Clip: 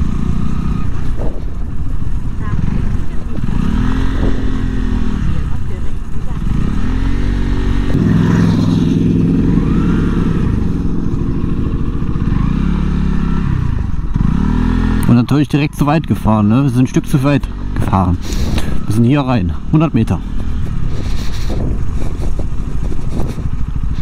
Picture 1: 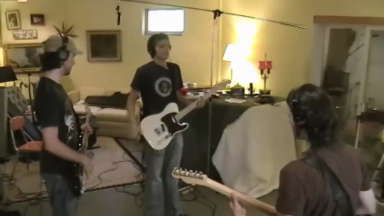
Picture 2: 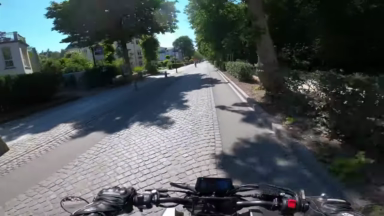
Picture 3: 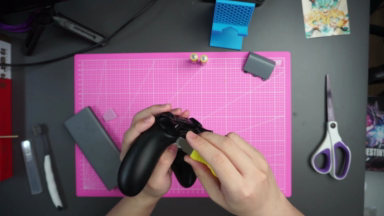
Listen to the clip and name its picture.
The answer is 2